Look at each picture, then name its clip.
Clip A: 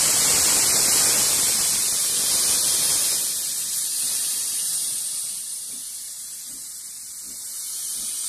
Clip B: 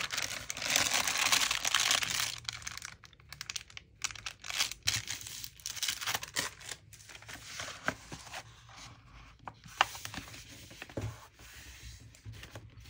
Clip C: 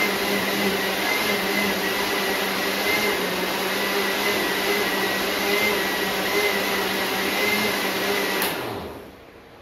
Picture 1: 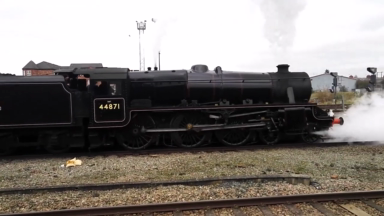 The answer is A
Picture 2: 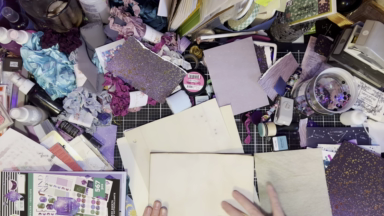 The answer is B